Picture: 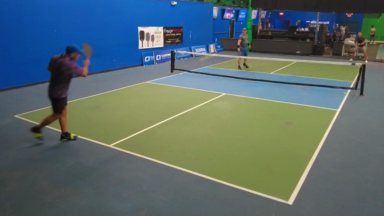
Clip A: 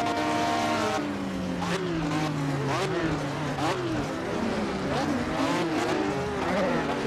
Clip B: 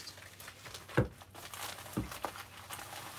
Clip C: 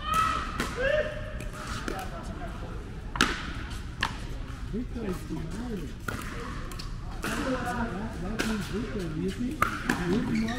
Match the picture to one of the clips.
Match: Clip C